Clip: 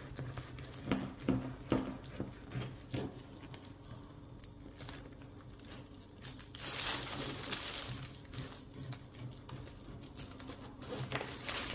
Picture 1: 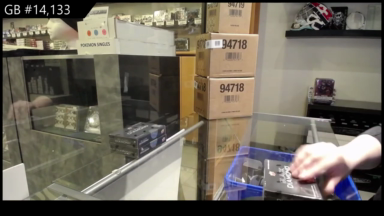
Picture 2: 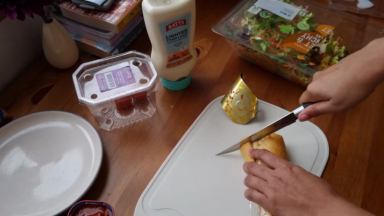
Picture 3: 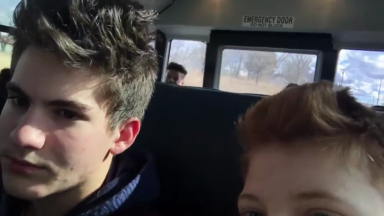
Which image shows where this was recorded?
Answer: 2